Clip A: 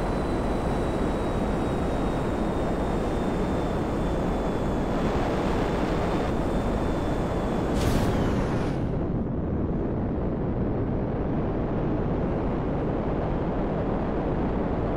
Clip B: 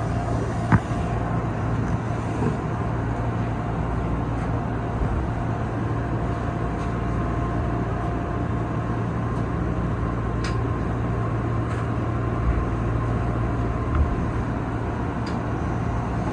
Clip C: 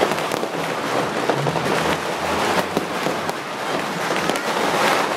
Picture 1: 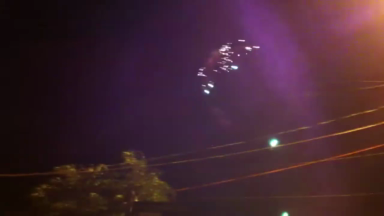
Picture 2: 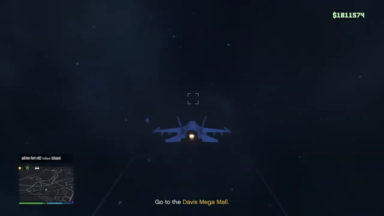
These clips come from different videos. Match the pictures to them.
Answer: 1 C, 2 A